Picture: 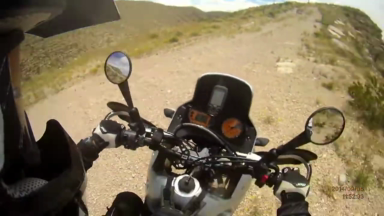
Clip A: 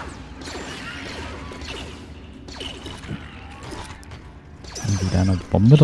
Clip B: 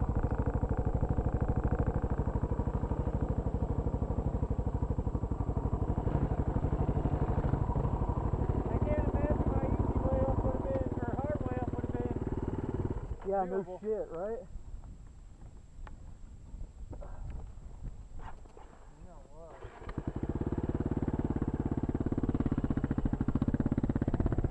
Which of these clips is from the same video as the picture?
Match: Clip B